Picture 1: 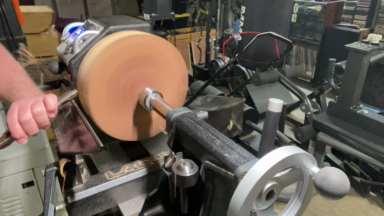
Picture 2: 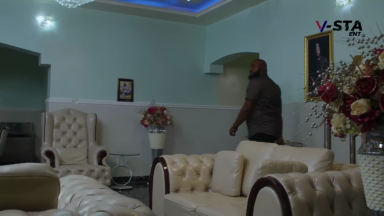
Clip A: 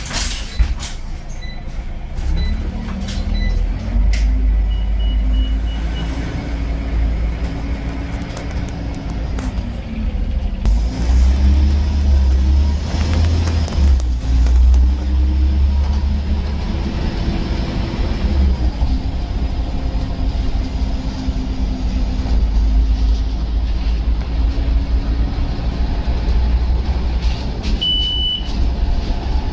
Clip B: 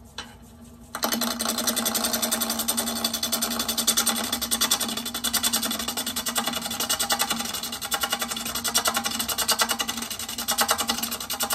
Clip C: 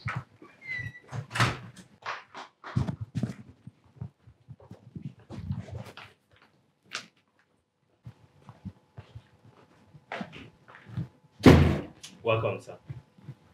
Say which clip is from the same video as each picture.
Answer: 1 B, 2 C